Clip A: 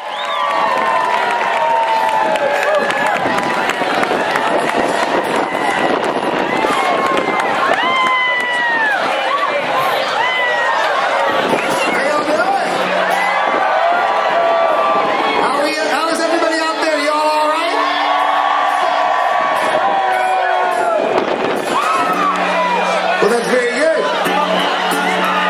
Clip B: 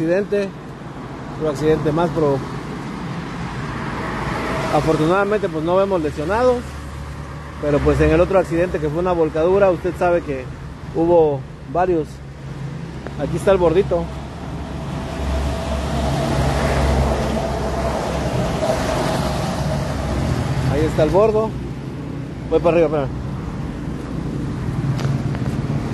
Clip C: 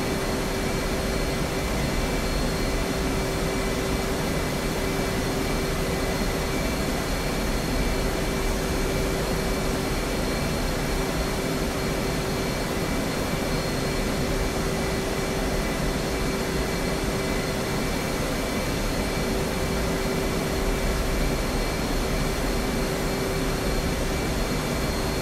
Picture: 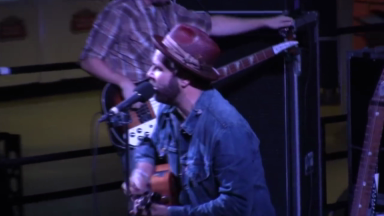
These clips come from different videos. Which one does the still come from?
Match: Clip A